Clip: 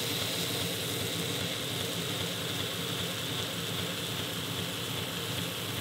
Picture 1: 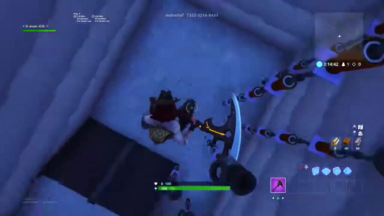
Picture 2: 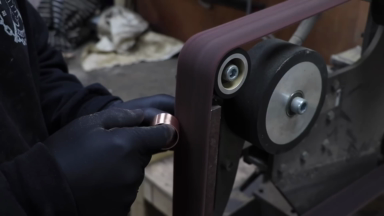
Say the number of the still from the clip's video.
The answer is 2